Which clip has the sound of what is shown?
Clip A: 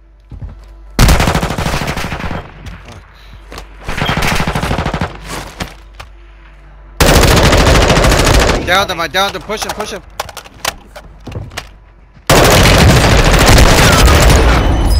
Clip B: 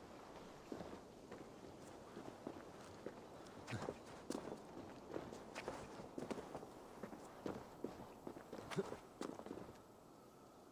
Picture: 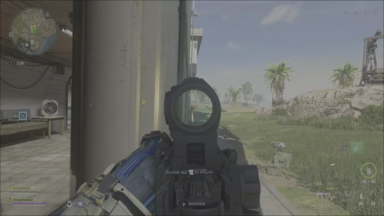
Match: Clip A